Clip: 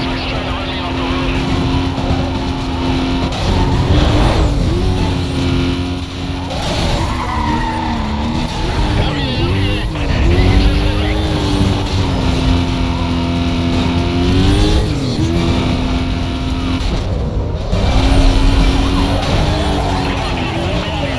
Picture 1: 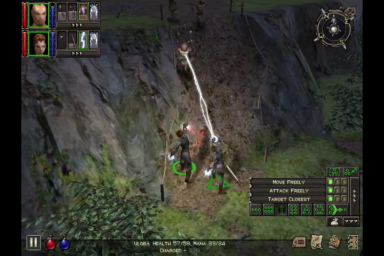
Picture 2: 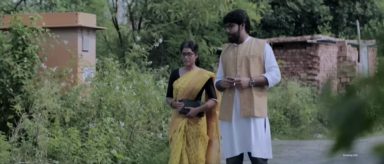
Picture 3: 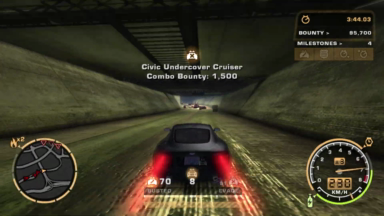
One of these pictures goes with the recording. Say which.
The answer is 3